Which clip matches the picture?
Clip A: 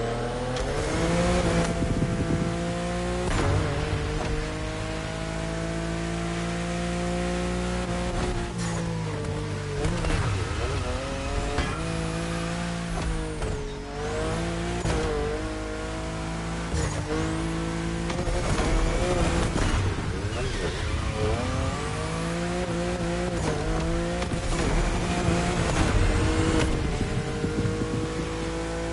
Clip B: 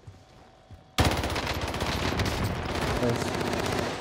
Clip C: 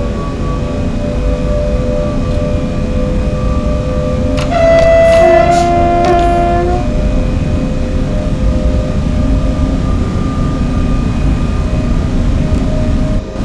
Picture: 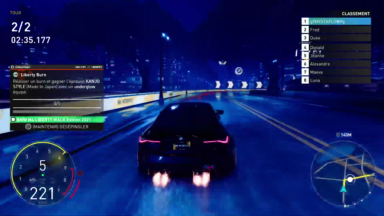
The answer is A